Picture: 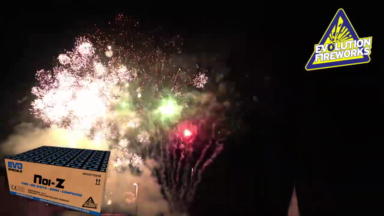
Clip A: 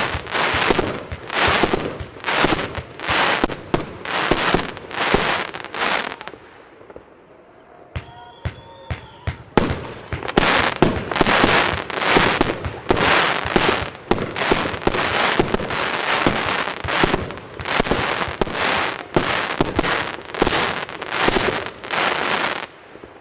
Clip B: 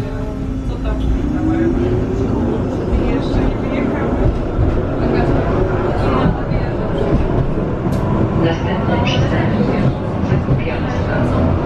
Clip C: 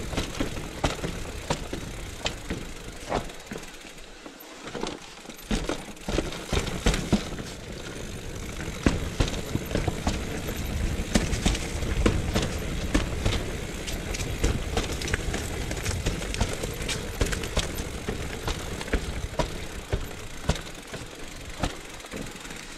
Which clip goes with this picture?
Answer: A